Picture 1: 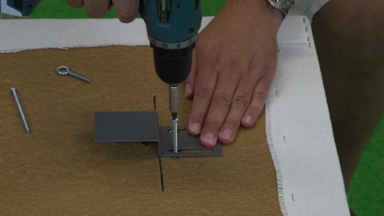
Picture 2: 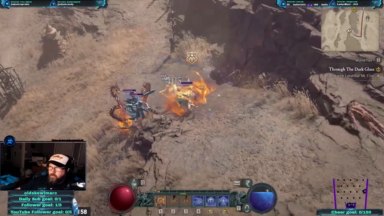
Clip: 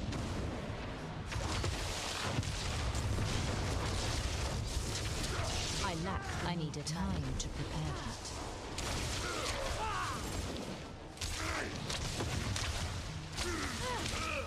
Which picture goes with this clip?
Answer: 2